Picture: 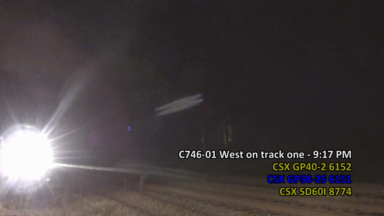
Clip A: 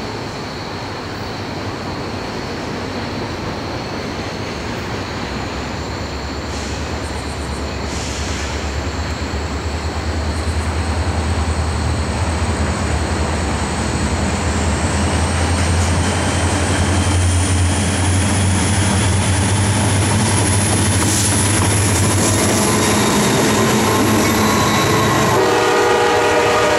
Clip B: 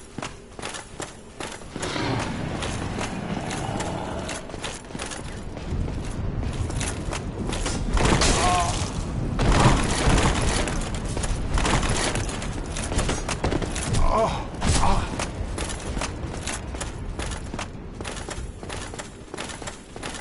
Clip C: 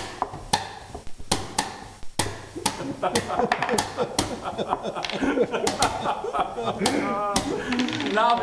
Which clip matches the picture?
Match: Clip A